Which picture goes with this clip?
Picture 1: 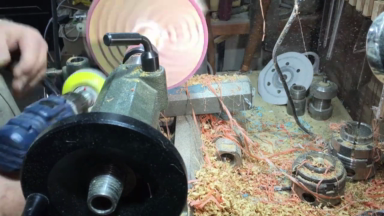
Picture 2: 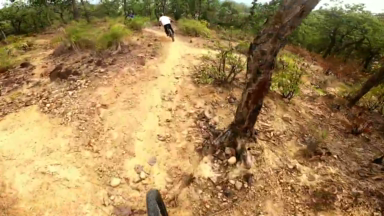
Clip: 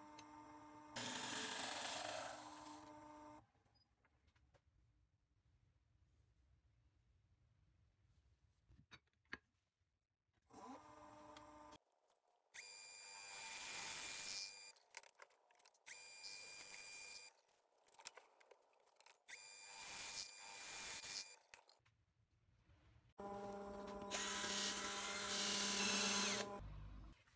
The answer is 1